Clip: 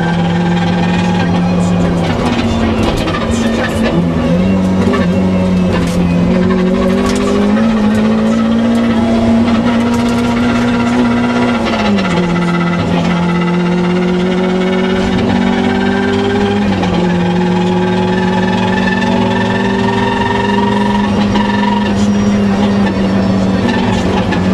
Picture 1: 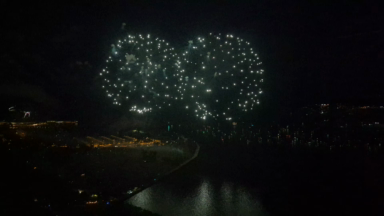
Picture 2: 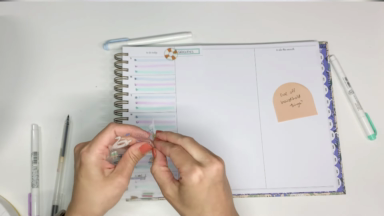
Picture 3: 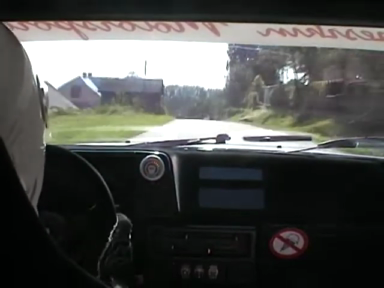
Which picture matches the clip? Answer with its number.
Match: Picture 3